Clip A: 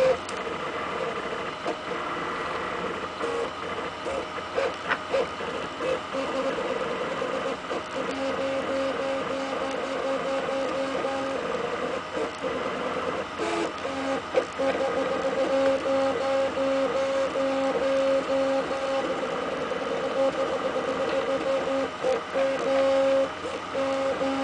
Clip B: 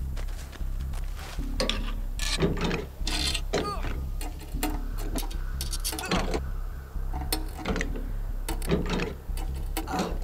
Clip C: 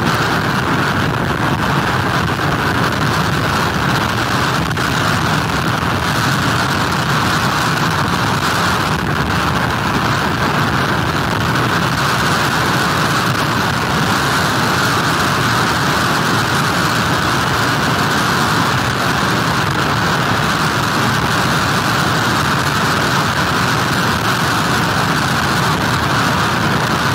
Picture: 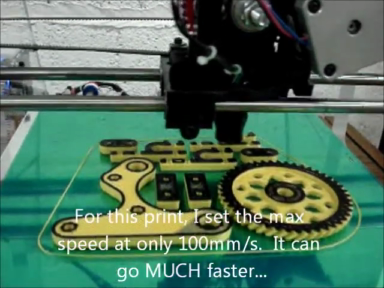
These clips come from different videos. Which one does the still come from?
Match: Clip A